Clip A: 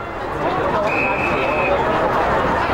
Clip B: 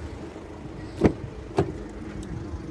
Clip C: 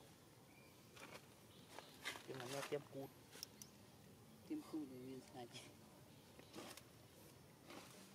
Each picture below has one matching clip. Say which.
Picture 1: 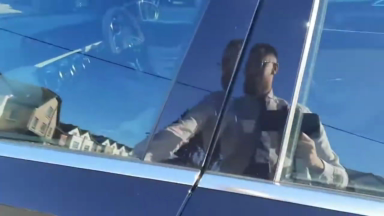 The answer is B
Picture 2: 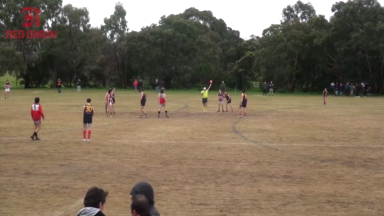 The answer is A